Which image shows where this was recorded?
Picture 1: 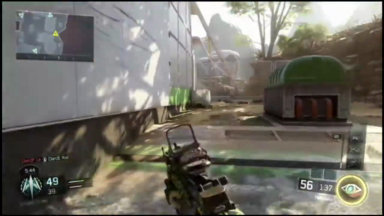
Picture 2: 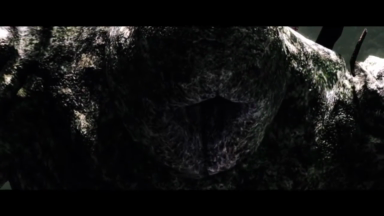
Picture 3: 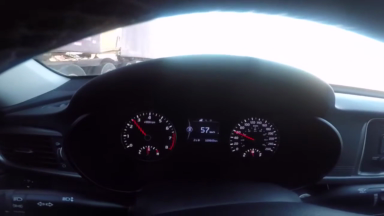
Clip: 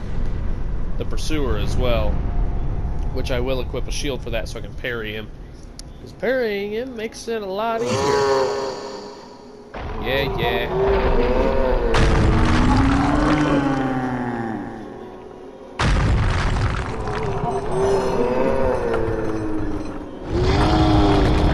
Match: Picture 2